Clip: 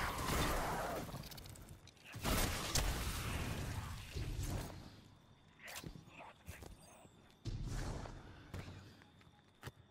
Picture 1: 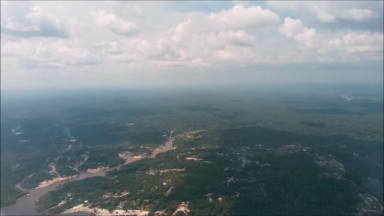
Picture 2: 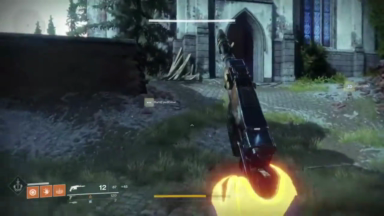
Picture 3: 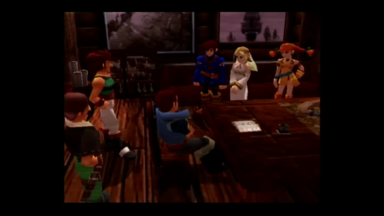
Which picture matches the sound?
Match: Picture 2